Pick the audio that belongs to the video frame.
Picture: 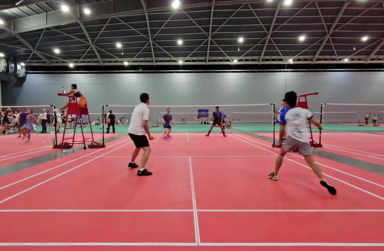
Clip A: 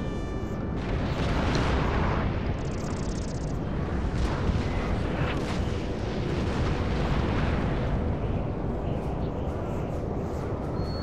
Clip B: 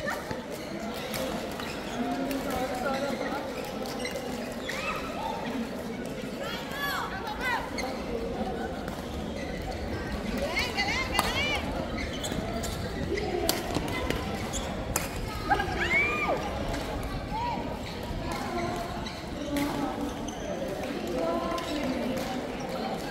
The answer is B